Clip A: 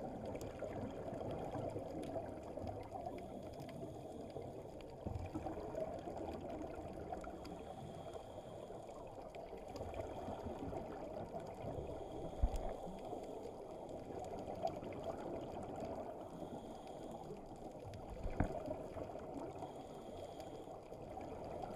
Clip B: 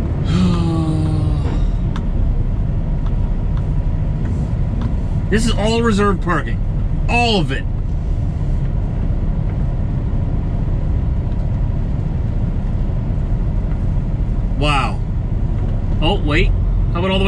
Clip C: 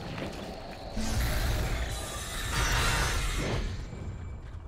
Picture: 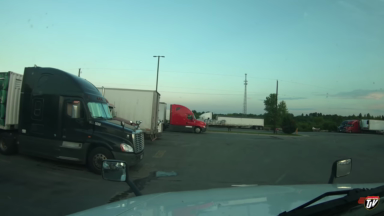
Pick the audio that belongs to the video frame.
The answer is B